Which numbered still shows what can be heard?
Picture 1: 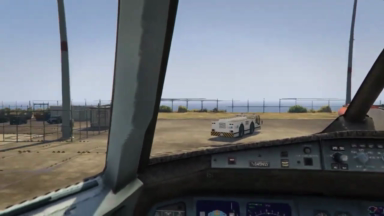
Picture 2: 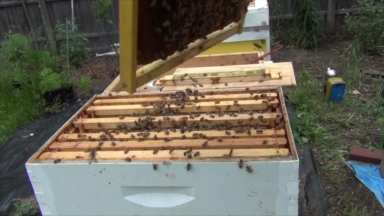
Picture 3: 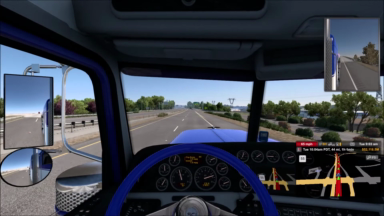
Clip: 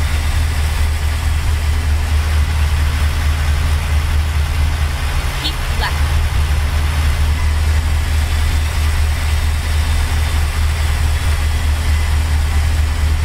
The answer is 3